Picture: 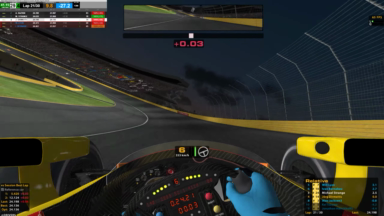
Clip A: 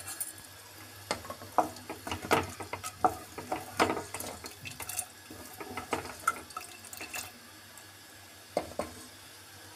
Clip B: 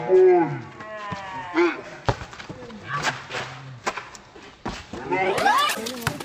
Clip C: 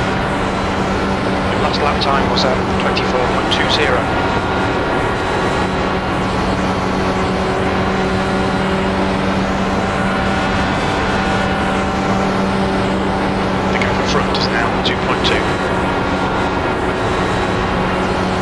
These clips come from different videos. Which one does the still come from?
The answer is C